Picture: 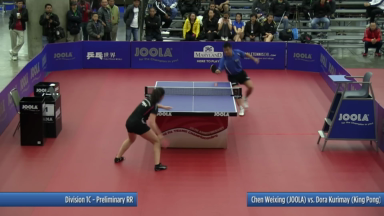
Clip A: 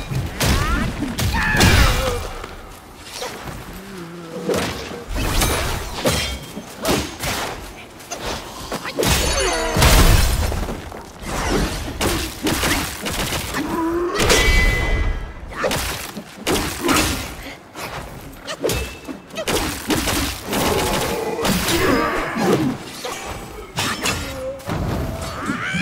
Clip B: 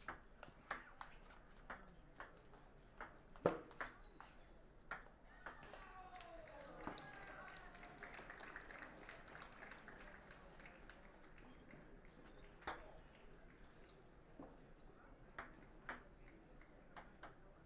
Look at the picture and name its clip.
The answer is B